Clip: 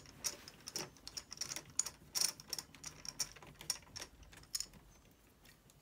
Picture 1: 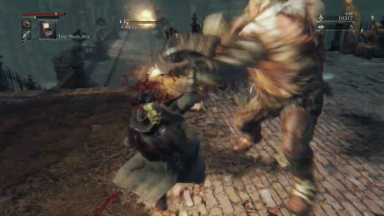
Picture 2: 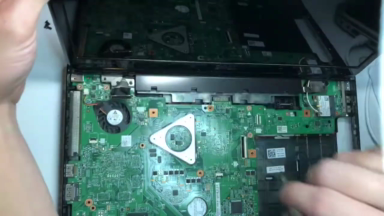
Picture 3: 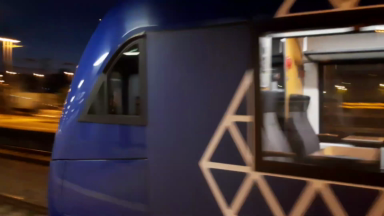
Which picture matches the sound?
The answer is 2